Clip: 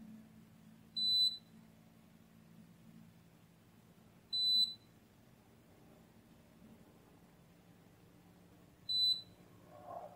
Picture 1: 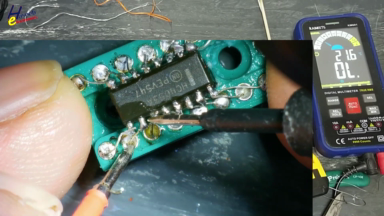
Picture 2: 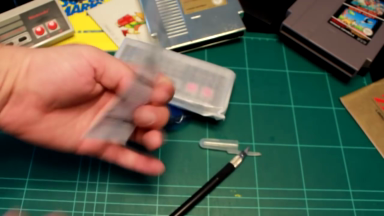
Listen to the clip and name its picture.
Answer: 1